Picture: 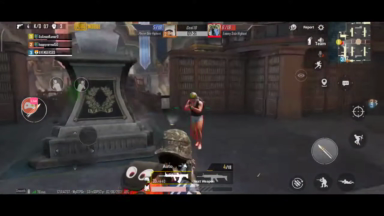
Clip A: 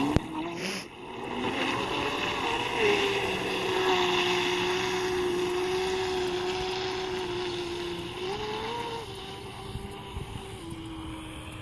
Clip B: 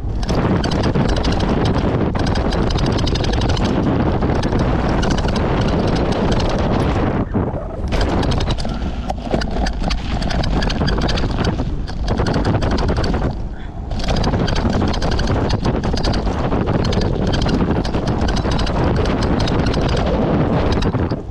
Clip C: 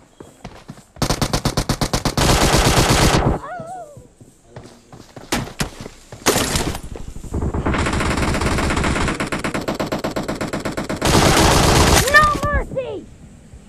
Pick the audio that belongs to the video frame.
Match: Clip C